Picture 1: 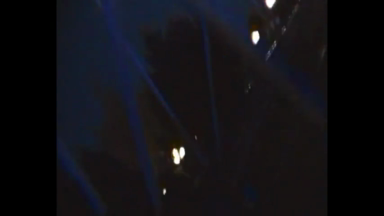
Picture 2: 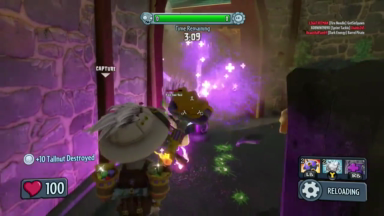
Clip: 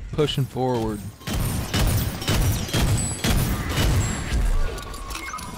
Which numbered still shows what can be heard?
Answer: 2